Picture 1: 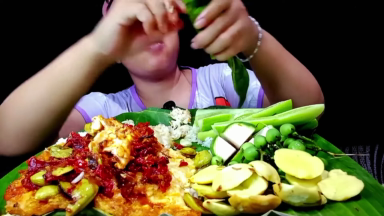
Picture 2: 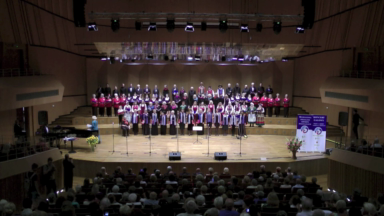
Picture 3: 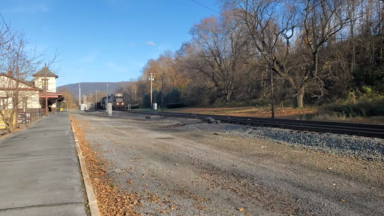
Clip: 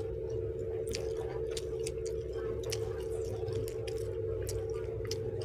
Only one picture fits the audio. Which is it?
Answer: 1